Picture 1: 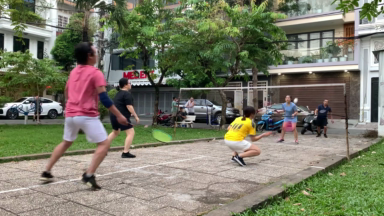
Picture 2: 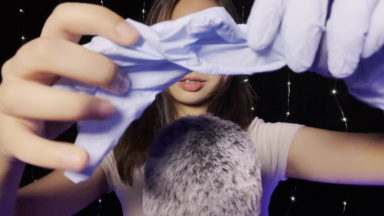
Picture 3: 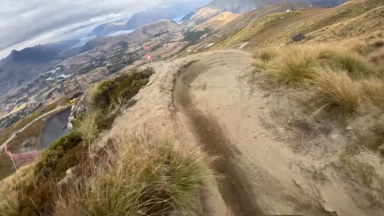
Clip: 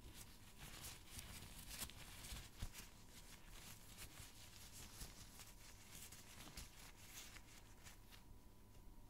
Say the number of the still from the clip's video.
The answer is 2